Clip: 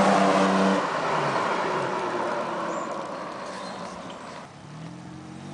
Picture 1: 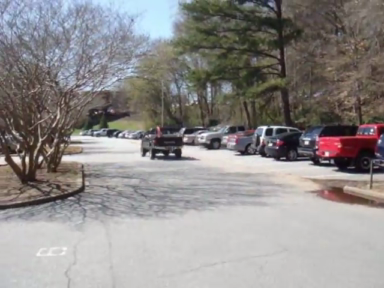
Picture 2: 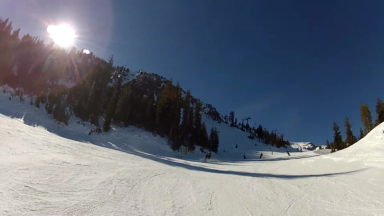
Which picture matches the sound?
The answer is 1